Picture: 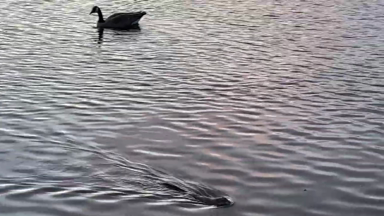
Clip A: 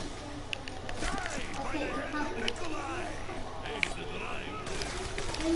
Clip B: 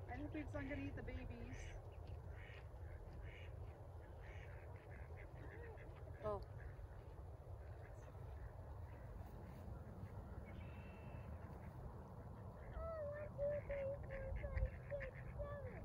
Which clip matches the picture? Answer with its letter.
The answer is B